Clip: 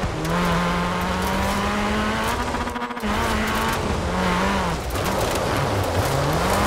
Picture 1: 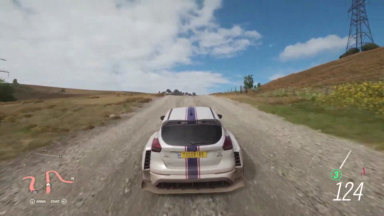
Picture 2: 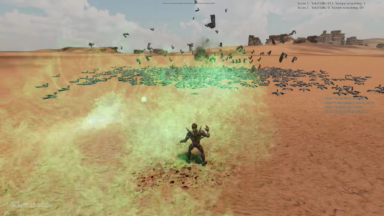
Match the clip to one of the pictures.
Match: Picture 1